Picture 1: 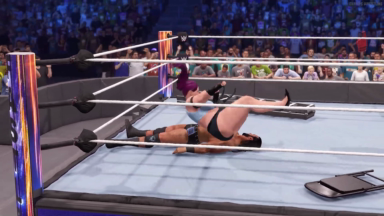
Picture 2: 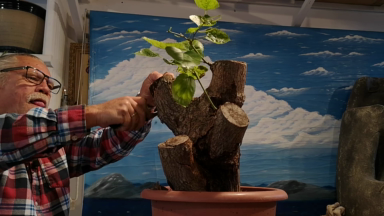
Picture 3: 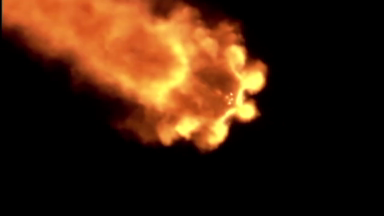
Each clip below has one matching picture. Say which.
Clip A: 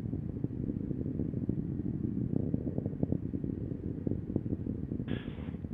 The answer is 3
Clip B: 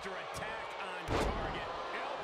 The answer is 1